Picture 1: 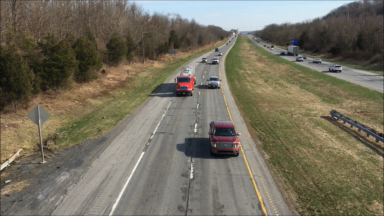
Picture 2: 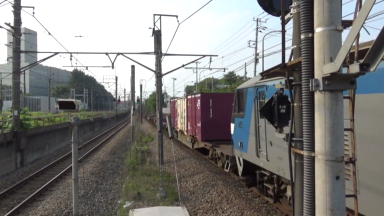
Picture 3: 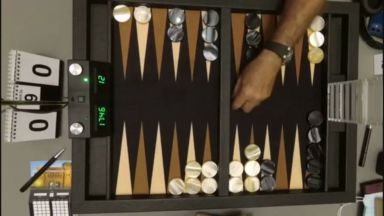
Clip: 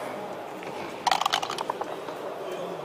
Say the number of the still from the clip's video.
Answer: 3